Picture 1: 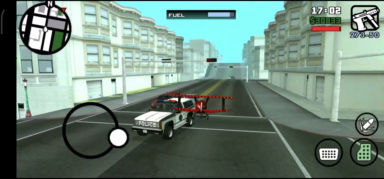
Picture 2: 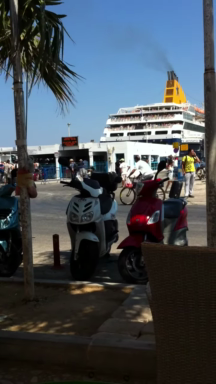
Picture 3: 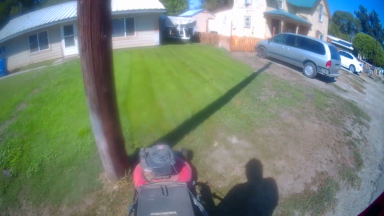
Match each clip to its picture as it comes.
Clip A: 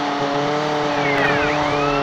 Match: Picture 1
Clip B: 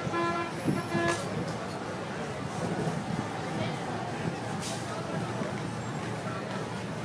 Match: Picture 2